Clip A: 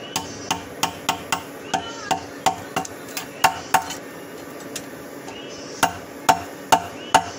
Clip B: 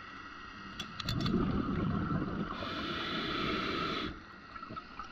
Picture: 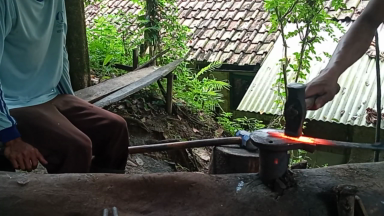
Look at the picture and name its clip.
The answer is A